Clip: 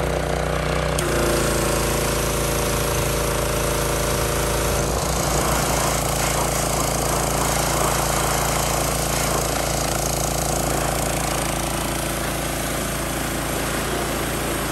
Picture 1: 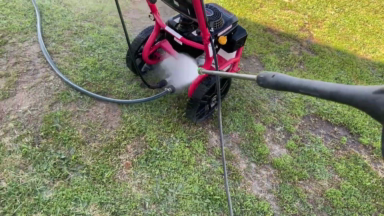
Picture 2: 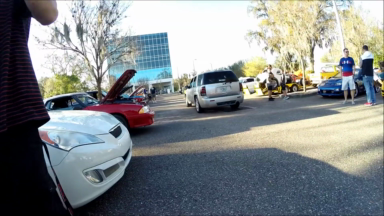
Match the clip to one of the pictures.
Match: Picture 1